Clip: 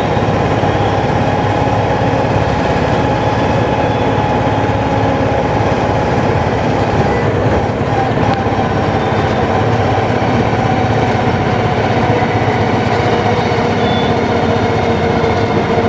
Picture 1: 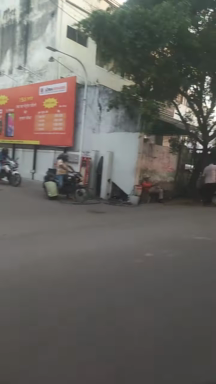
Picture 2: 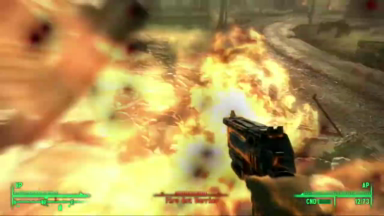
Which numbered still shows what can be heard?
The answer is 1